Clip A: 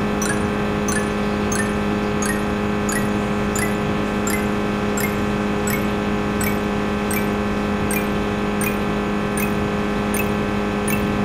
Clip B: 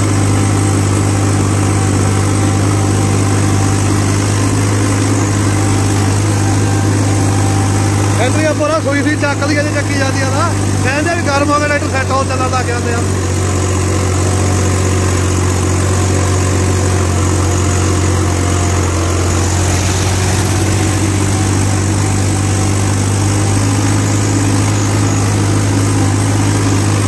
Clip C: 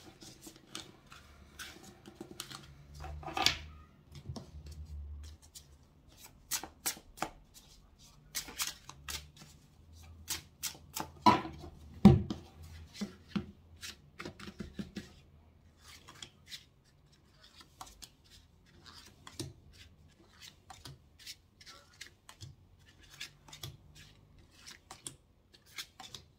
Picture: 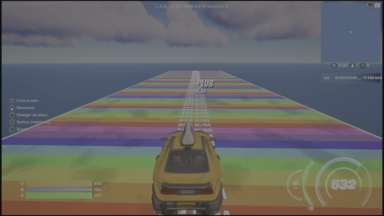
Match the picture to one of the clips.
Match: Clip A